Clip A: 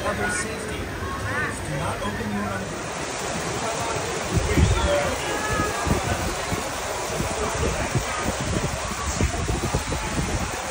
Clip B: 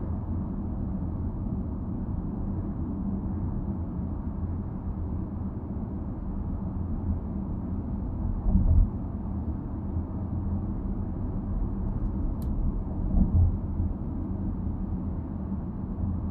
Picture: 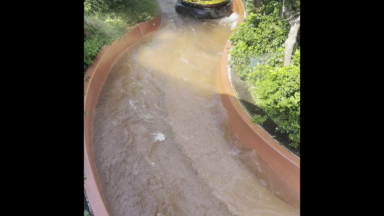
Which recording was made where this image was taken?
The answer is A